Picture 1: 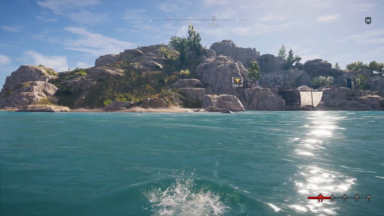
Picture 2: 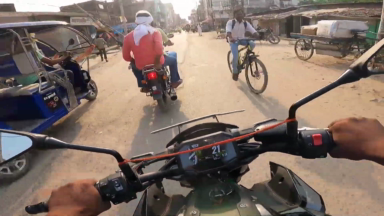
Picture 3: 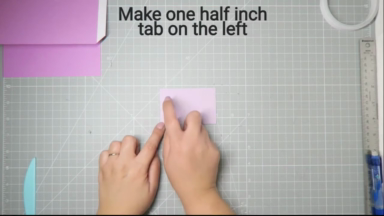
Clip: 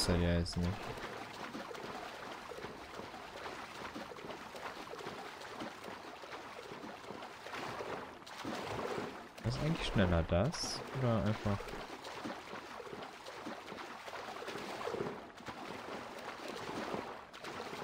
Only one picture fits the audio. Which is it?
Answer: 1